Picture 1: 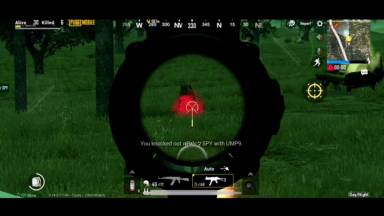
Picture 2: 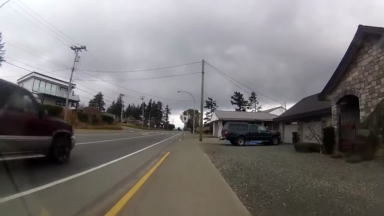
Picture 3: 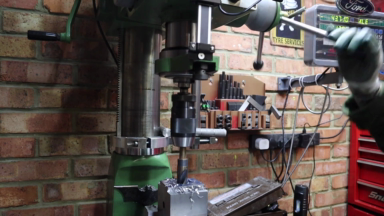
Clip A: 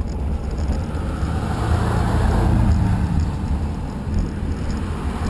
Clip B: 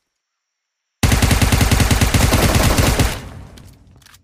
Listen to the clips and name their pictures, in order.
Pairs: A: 2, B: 1